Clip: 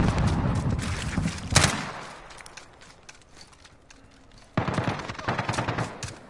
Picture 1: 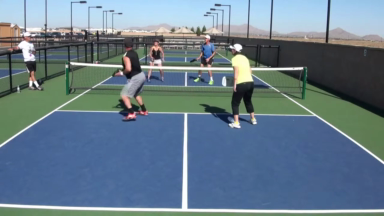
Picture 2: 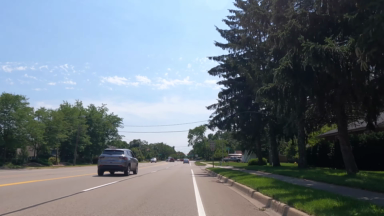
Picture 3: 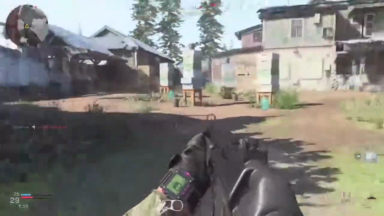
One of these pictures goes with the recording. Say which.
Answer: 3